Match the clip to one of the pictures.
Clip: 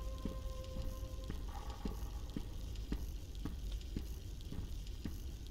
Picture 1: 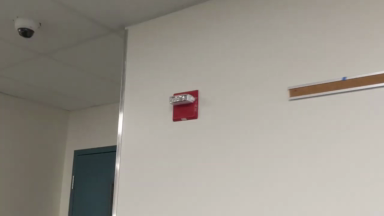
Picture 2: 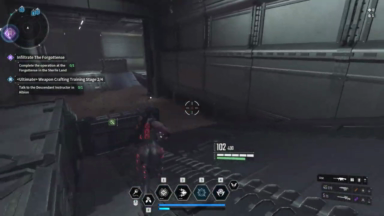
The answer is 2